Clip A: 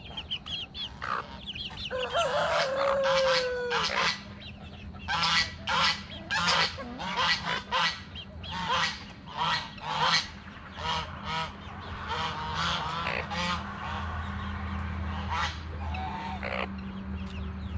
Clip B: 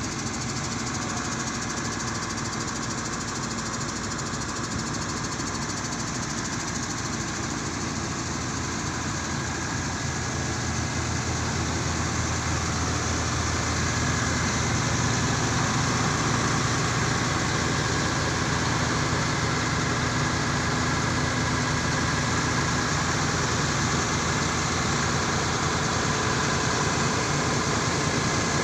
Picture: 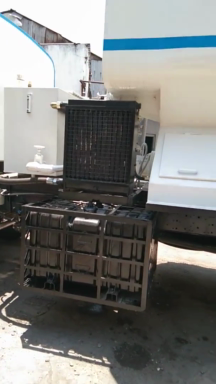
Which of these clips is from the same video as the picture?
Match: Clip B